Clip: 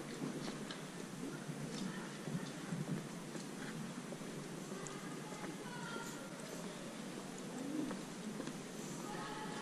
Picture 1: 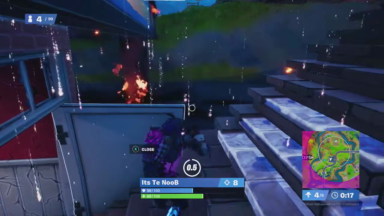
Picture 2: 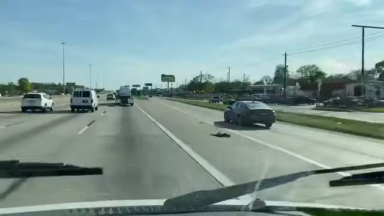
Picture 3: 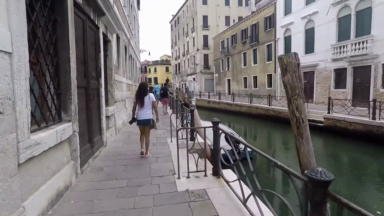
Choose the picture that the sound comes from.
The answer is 3